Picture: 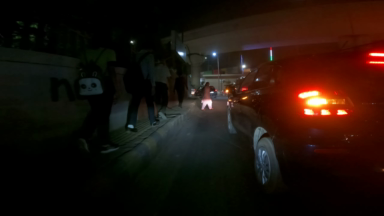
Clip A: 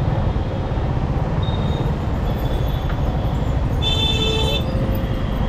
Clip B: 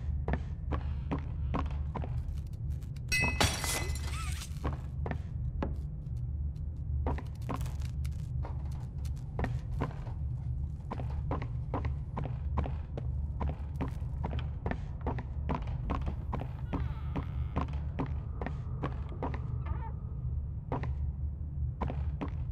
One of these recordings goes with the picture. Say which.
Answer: A